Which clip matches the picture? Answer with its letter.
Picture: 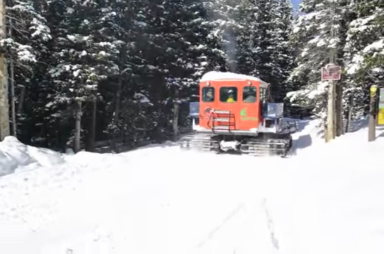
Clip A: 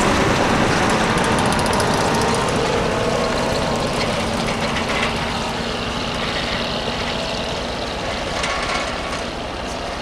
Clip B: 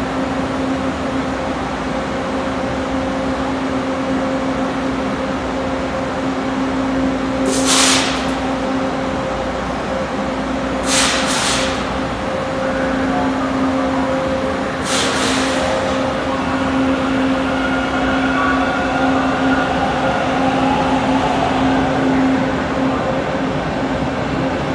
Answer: A